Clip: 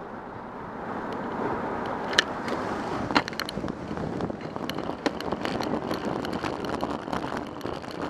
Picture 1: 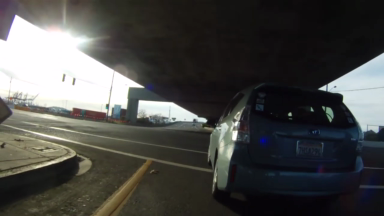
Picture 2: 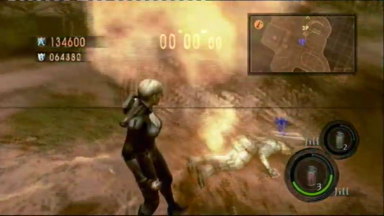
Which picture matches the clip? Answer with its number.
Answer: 1